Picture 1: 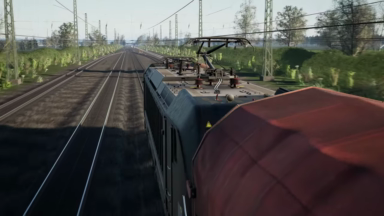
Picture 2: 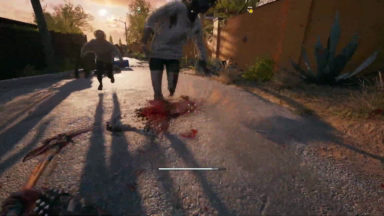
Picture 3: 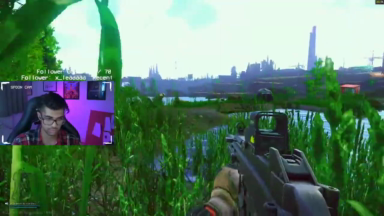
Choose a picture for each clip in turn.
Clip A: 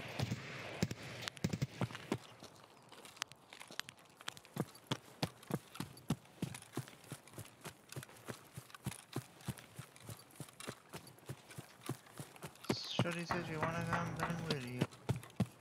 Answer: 3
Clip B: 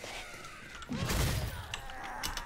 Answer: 2